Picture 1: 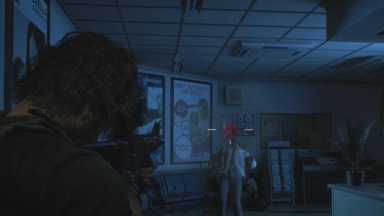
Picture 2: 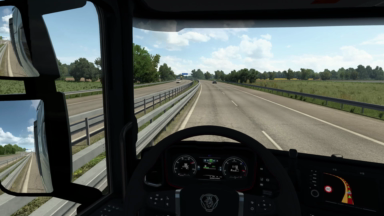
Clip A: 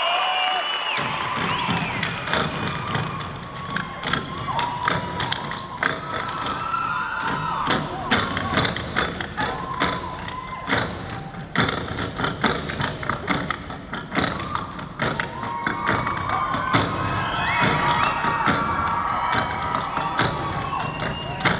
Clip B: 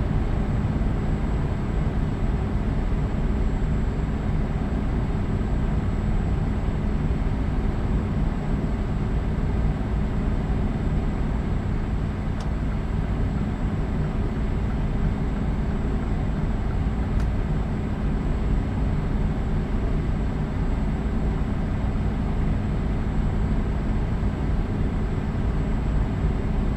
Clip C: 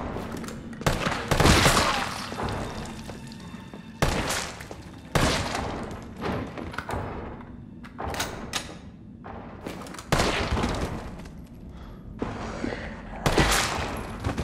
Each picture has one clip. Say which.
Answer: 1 C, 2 B